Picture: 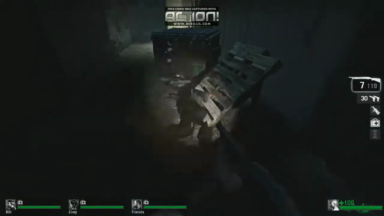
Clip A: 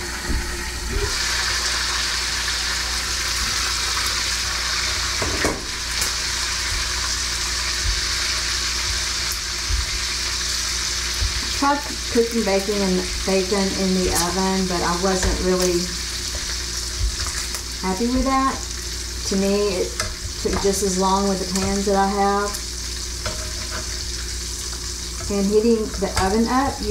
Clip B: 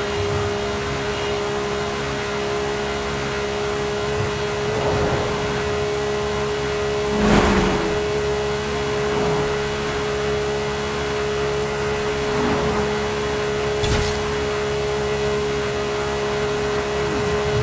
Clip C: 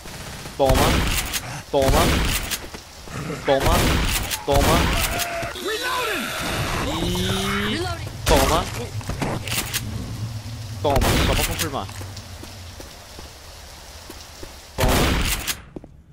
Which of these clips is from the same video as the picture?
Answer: C